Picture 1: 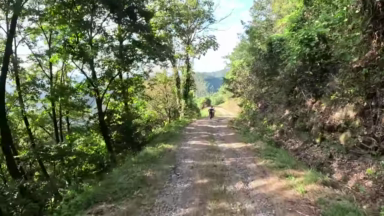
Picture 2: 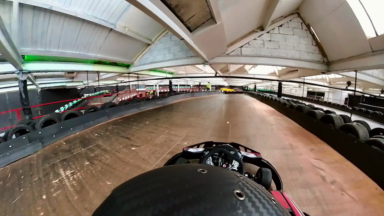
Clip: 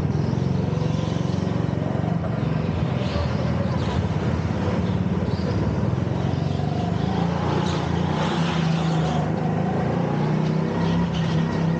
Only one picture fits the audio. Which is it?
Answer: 2